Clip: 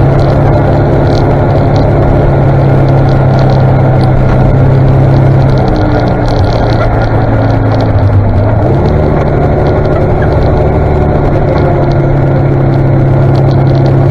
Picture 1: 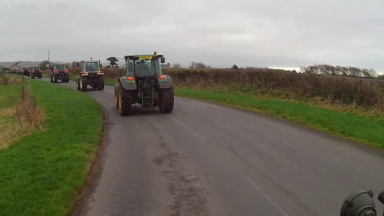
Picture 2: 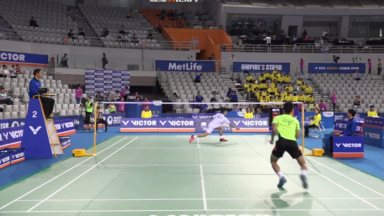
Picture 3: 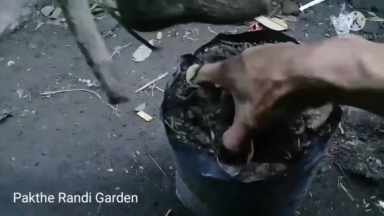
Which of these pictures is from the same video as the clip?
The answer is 1